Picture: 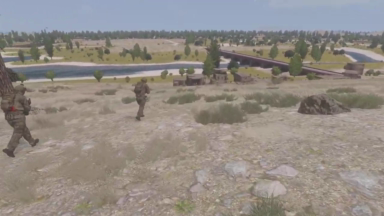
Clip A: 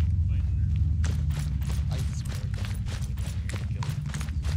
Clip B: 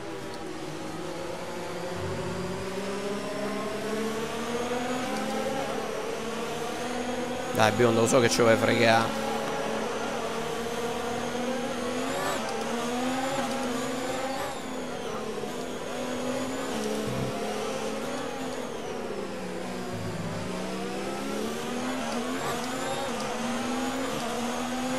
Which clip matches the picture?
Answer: A